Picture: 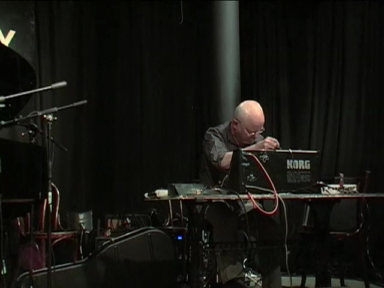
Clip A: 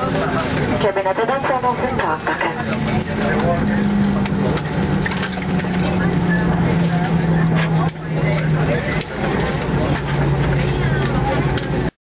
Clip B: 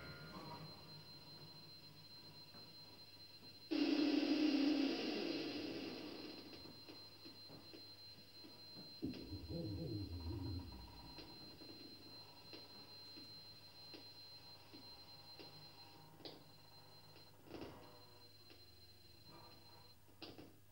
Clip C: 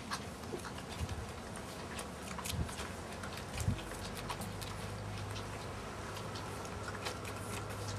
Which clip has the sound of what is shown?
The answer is B